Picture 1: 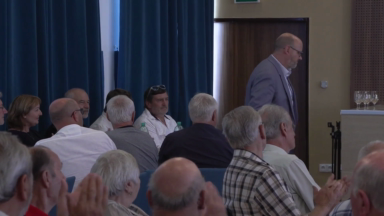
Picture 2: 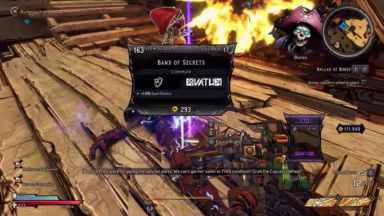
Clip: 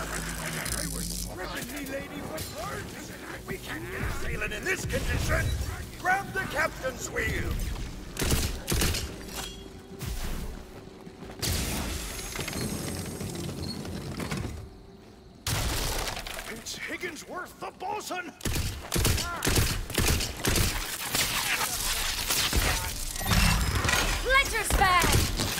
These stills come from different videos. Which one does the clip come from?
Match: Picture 2